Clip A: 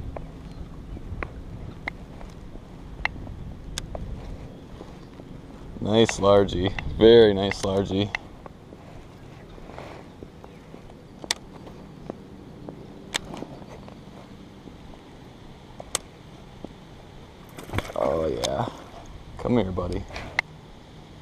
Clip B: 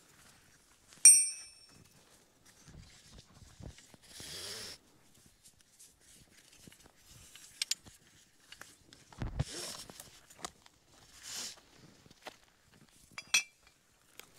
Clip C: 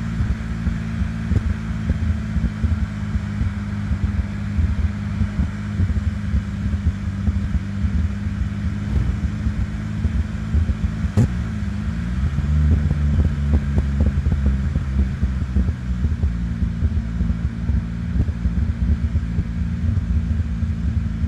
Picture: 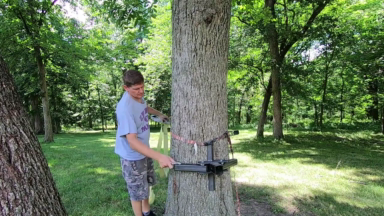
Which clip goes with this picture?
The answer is B